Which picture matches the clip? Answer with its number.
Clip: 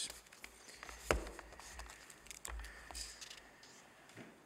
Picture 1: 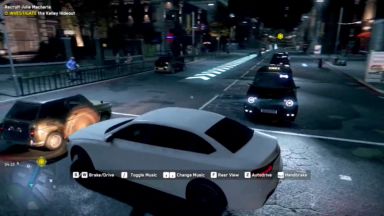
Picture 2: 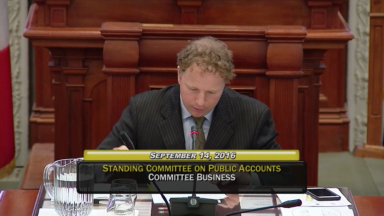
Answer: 2